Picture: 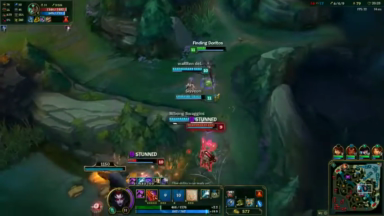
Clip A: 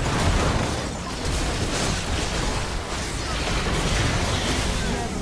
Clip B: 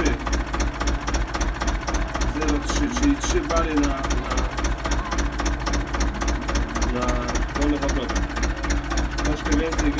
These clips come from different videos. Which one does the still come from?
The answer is A